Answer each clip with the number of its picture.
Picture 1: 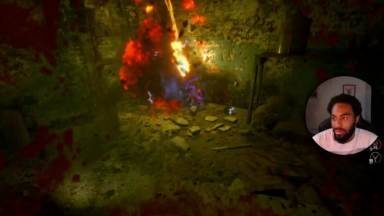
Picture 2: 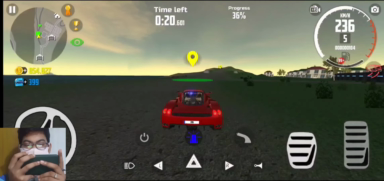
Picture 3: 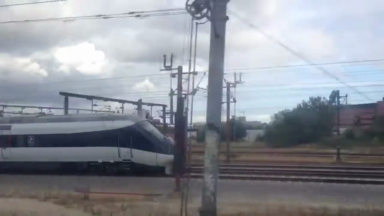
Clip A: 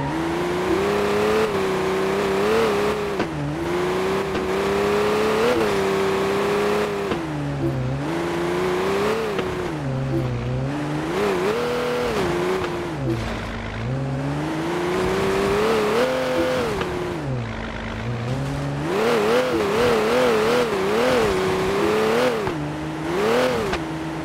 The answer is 2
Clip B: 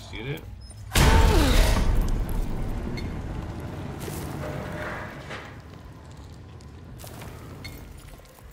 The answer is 1